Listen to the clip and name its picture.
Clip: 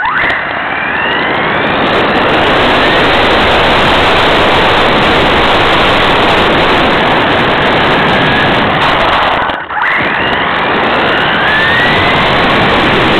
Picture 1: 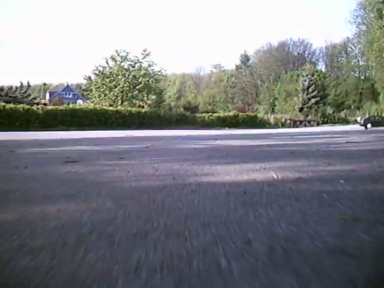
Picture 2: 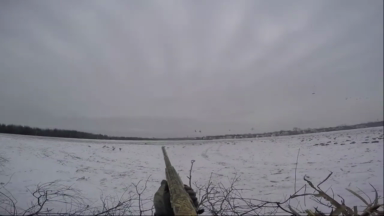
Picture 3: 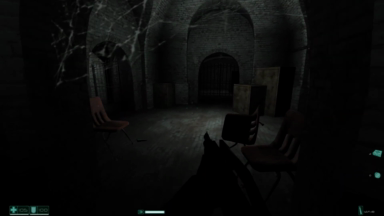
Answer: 1